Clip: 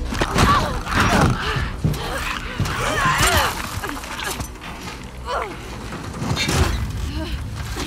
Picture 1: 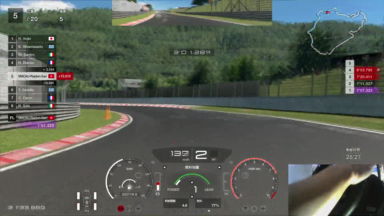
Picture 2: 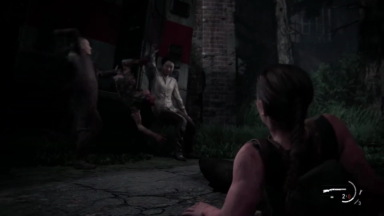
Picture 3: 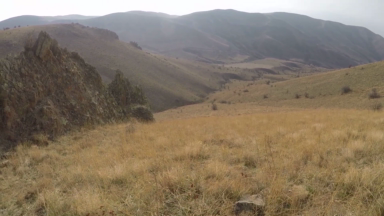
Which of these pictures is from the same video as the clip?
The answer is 2